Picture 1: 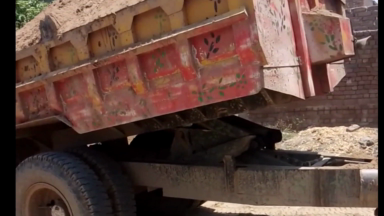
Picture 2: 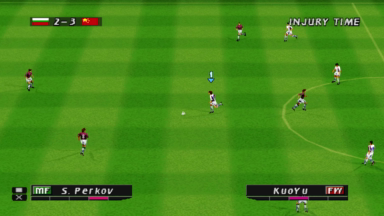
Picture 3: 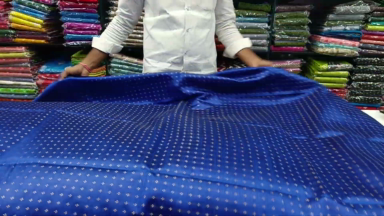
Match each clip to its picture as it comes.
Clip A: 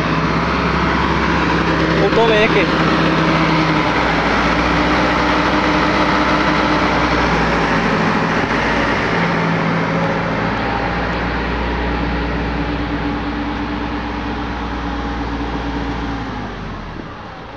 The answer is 1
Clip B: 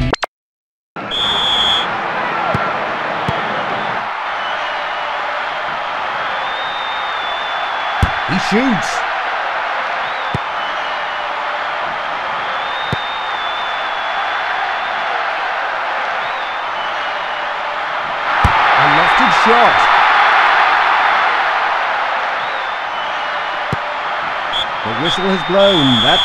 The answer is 2